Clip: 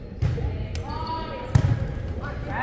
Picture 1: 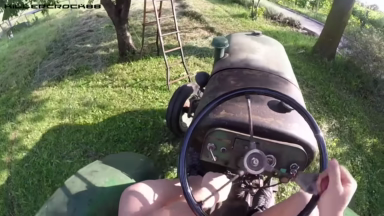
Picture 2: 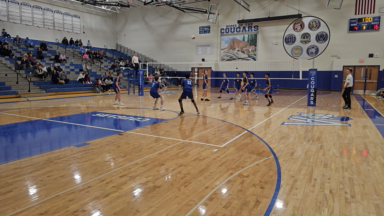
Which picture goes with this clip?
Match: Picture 2